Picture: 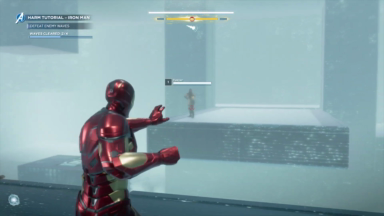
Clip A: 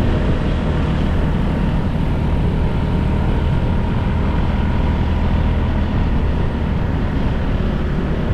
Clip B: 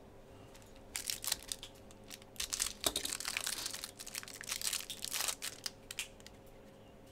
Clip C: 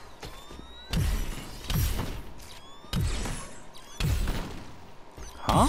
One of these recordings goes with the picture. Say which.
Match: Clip C